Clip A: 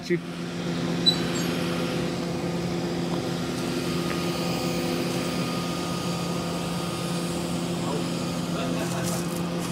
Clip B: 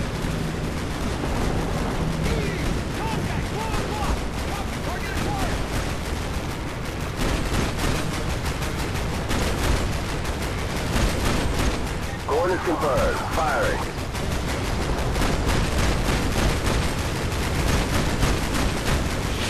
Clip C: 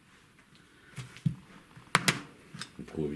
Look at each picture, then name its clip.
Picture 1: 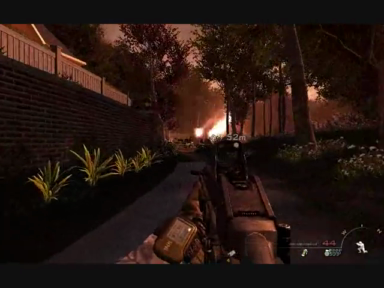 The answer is B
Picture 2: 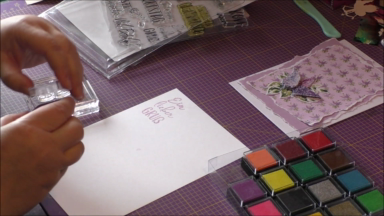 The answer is C